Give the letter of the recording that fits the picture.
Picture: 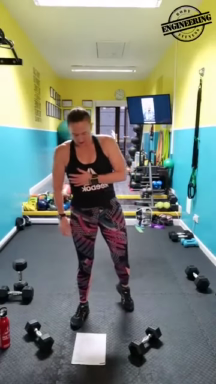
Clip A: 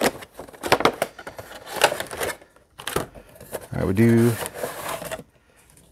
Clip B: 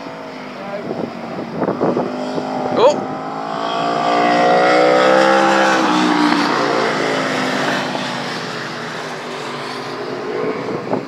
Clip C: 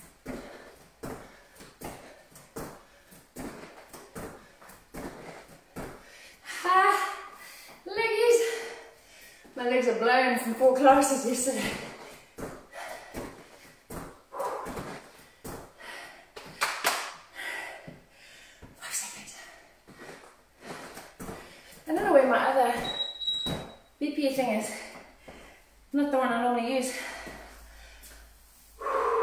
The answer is C